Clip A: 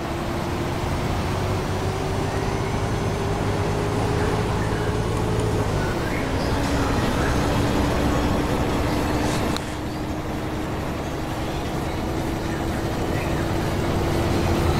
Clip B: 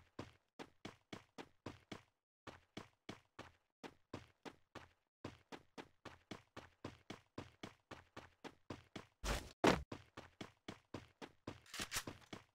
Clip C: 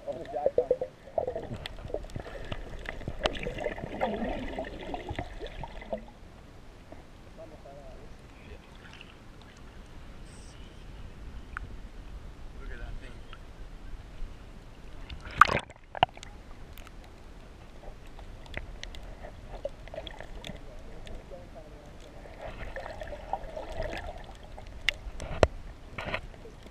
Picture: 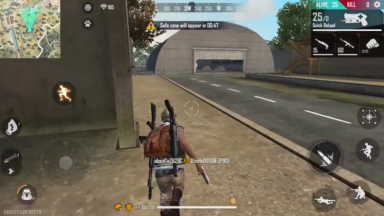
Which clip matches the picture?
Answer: B